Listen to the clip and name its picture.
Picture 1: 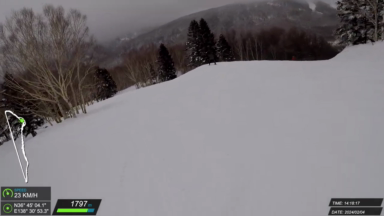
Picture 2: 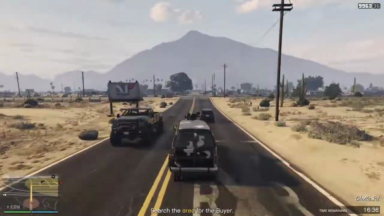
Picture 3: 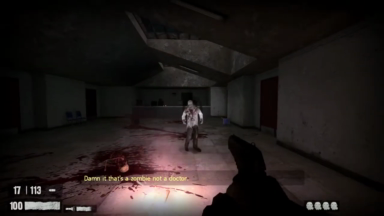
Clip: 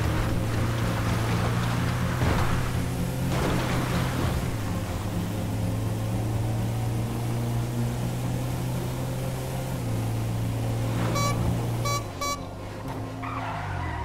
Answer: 2